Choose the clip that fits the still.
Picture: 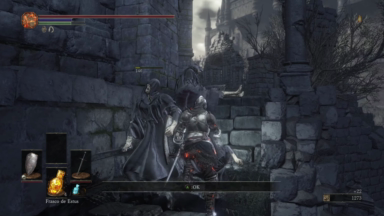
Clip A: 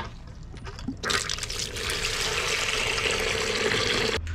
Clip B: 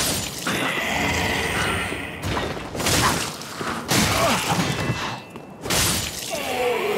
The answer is B